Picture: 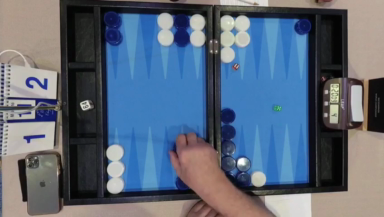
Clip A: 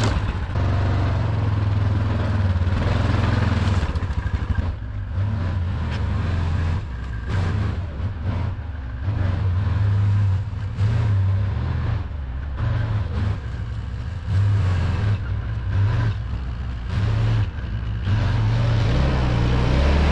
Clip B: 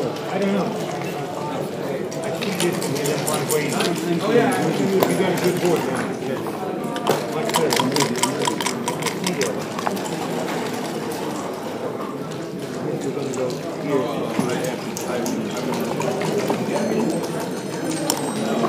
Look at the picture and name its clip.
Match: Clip B